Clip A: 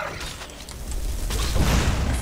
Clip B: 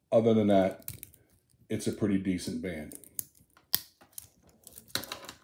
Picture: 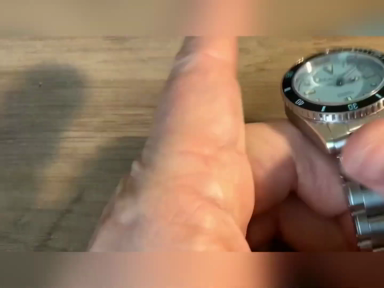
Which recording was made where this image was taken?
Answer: B